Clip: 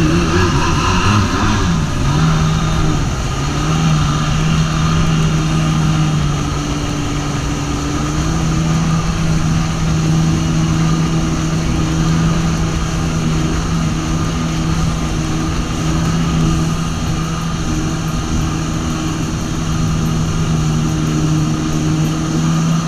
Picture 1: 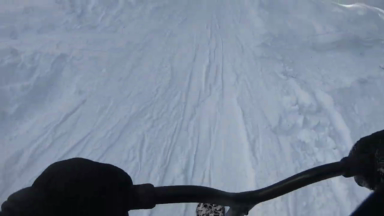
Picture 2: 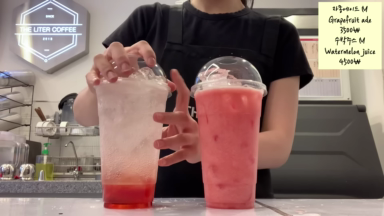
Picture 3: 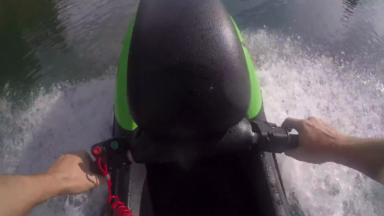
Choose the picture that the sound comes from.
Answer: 3